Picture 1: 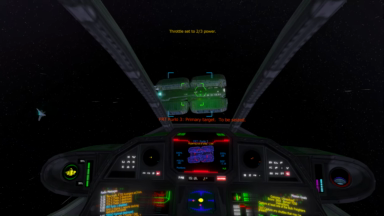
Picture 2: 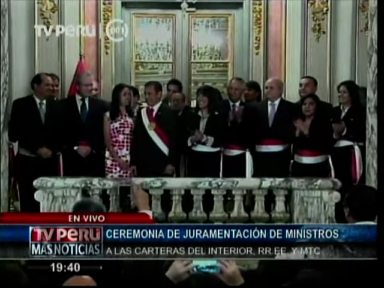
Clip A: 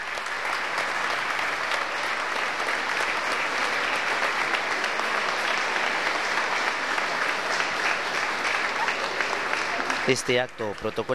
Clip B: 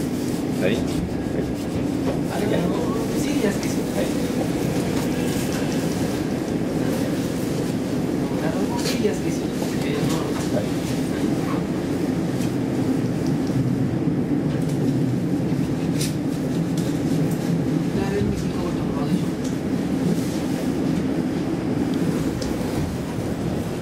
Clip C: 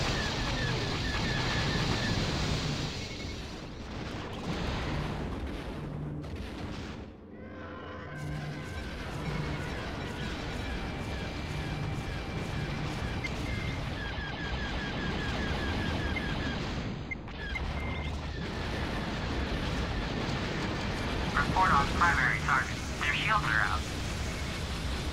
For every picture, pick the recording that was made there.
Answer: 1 C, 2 A